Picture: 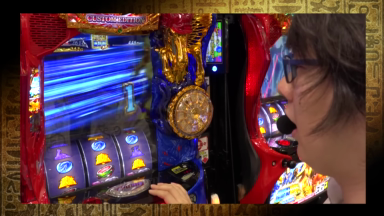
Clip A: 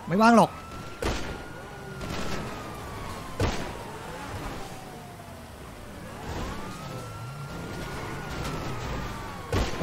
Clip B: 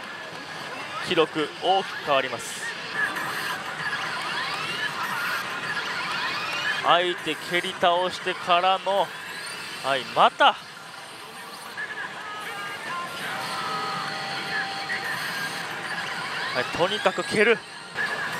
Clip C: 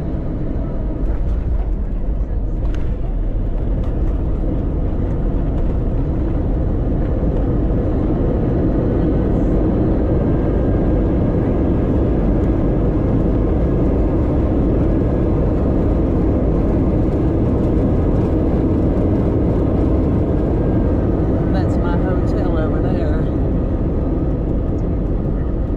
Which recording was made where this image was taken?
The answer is B